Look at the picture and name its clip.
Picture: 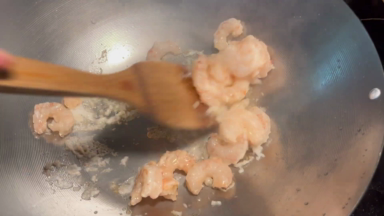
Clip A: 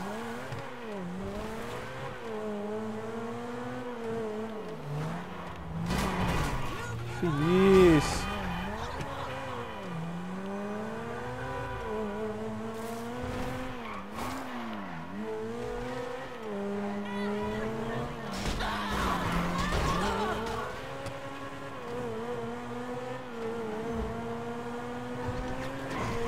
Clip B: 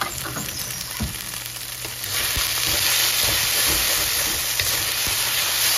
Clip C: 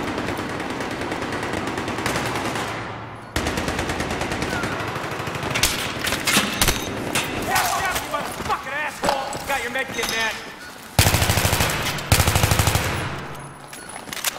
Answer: B